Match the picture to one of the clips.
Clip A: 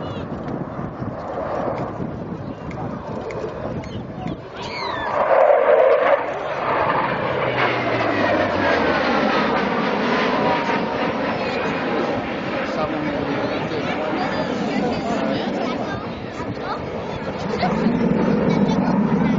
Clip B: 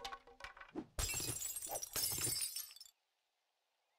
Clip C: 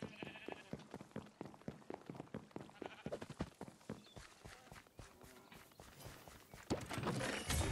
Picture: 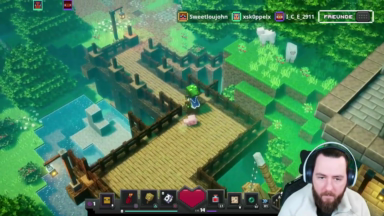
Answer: C